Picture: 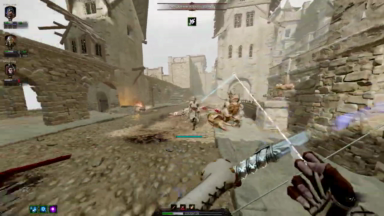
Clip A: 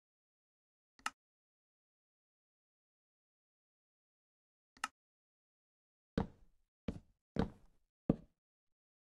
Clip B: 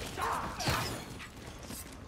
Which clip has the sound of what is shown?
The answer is B